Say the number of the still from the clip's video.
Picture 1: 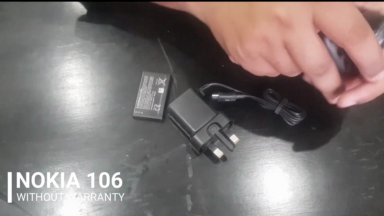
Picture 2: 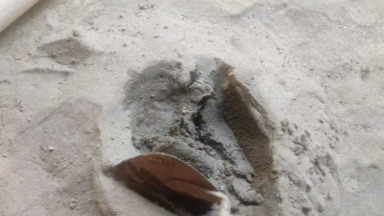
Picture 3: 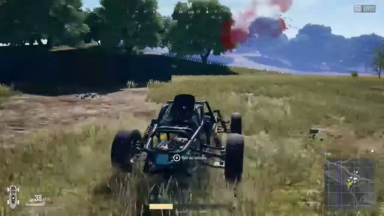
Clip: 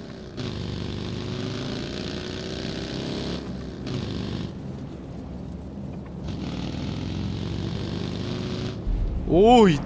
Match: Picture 3